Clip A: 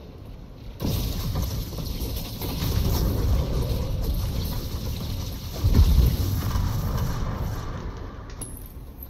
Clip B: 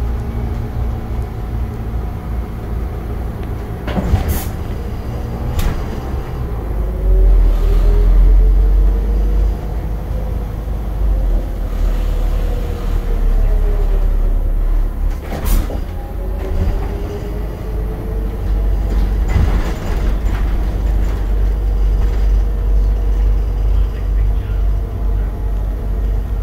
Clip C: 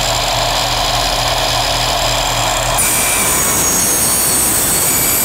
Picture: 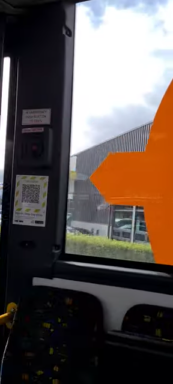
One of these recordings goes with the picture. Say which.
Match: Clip B